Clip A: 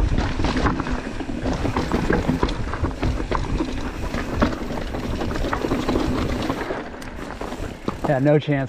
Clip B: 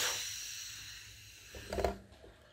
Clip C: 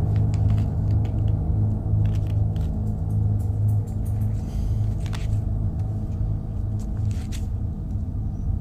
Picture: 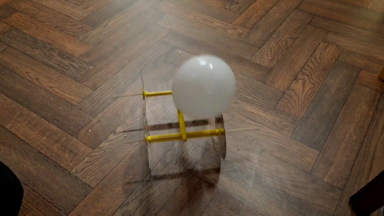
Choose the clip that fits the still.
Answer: B